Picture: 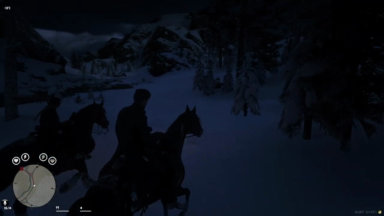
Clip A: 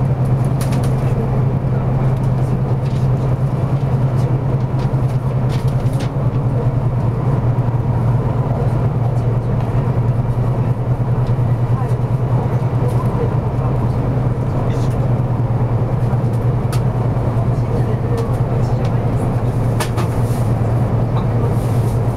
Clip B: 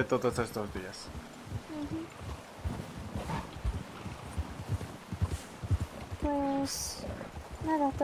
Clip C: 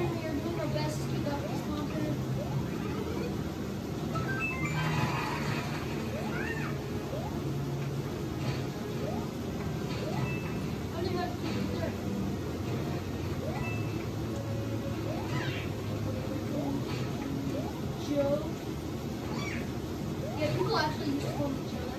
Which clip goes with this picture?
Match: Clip B